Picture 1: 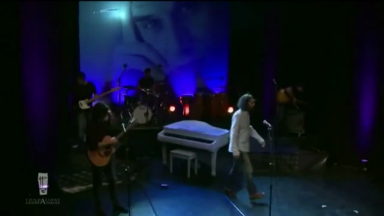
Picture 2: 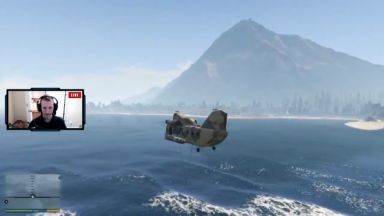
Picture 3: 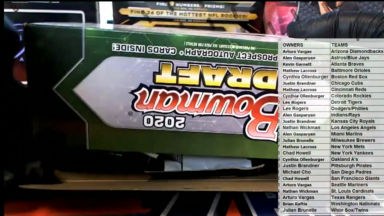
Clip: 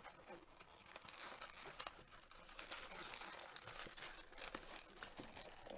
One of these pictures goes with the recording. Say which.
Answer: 3